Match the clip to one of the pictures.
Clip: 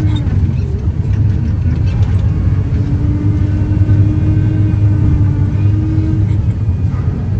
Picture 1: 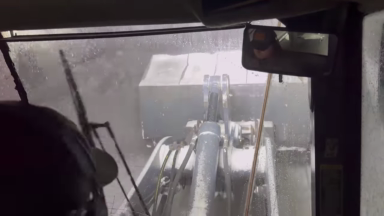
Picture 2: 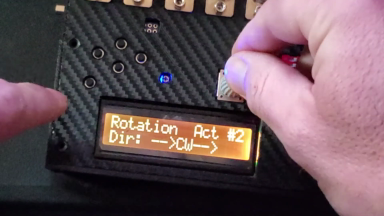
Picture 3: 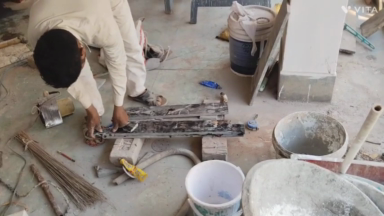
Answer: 1